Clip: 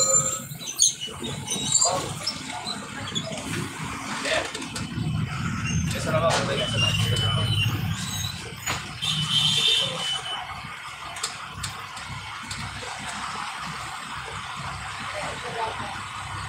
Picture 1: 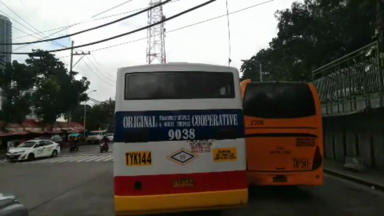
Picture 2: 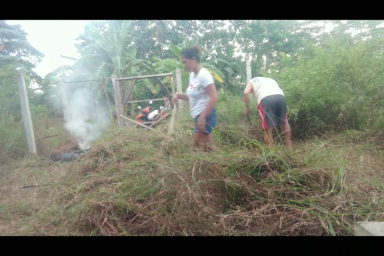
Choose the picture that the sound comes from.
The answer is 1